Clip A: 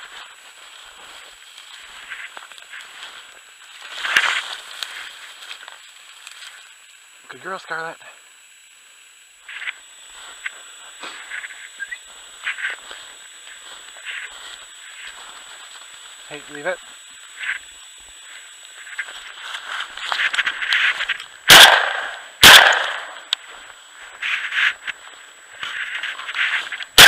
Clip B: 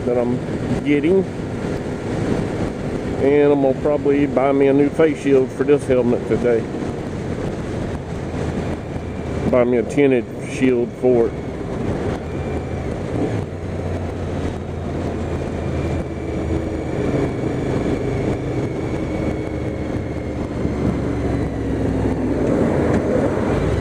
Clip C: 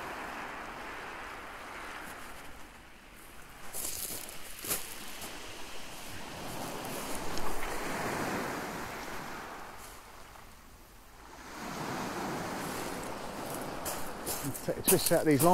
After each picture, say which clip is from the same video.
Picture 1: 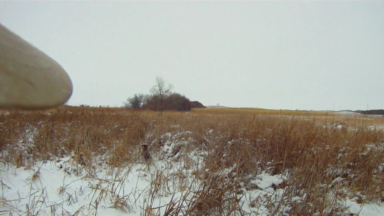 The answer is A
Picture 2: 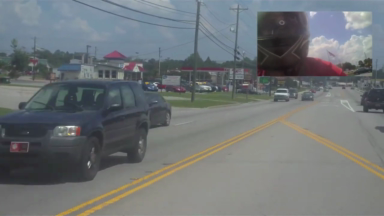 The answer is B